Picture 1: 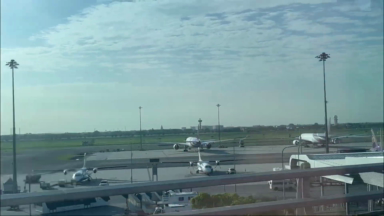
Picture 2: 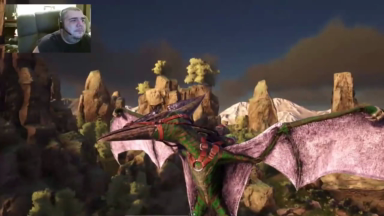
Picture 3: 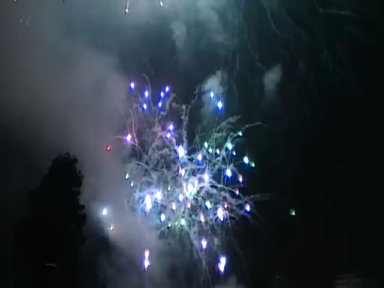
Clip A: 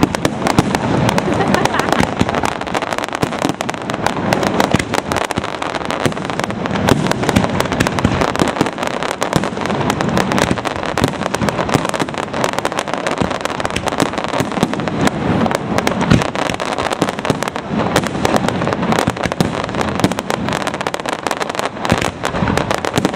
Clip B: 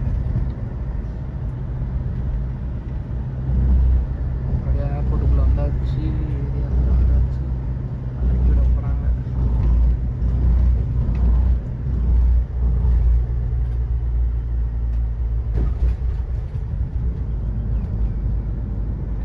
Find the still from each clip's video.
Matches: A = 3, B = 1